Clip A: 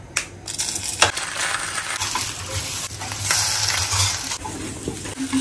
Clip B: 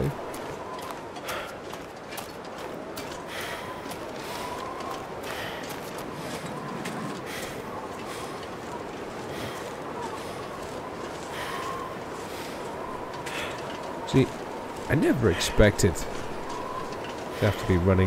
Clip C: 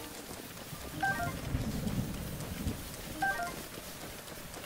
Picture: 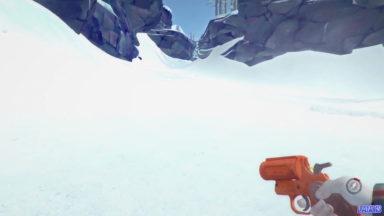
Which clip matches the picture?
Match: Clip B